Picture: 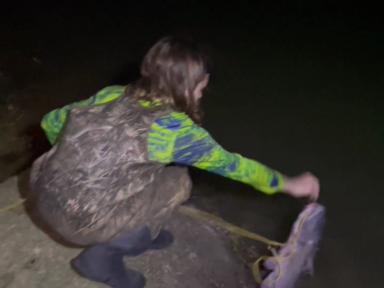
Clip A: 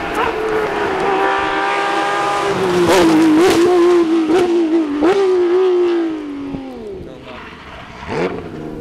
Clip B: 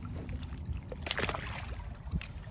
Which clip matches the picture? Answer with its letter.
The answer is B